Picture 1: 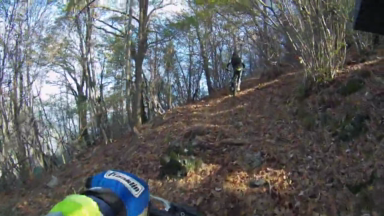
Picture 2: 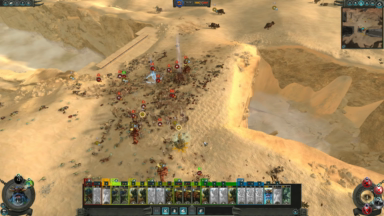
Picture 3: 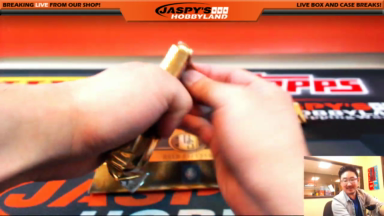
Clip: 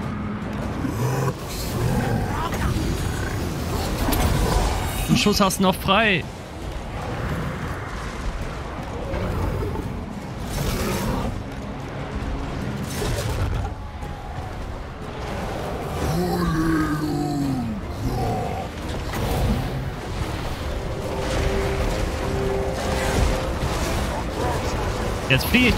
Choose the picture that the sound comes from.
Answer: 2